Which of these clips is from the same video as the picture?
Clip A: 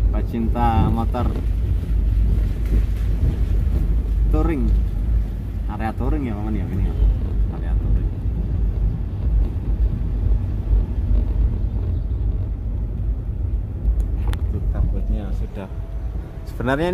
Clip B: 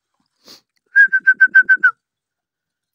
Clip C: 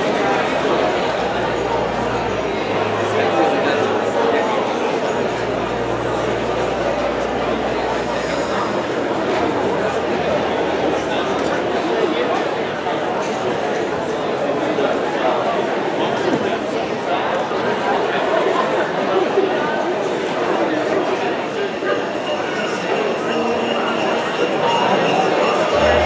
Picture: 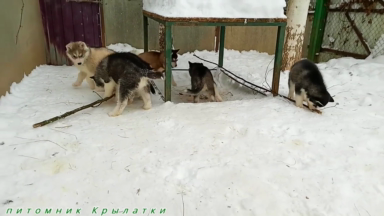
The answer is B